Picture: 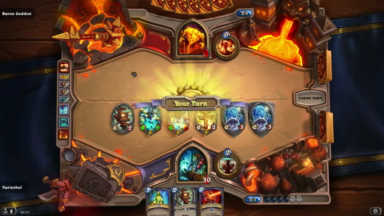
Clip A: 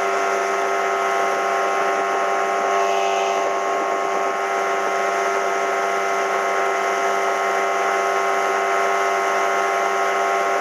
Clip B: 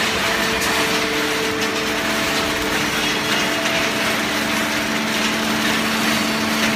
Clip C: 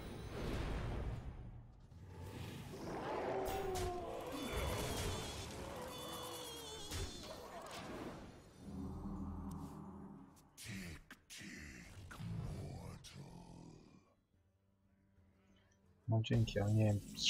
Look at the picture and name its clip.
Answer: C